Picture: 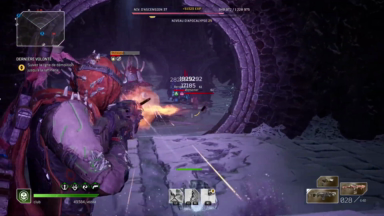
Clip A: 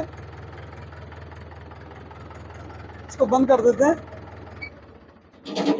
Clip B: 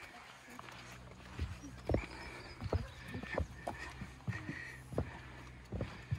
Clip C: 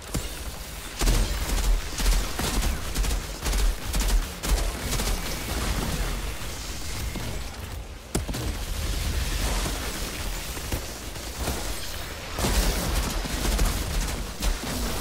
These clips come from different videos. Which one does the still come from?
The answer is C